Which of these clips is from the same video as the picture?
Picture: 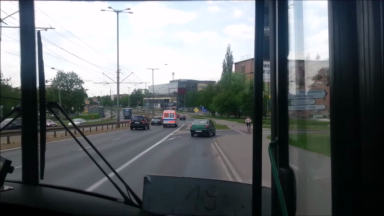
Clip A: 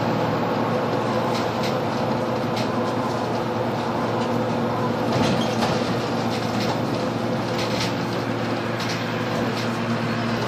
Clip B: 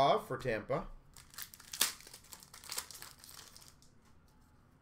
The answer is A